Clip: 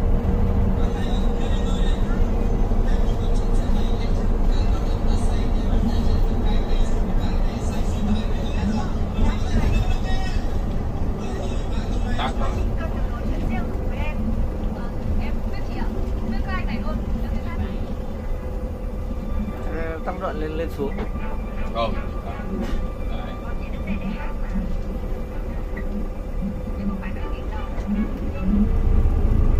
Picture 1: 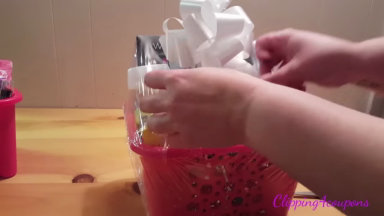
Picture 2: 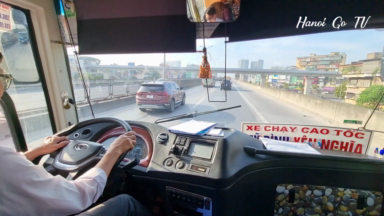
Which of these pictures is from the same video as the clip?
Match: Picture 2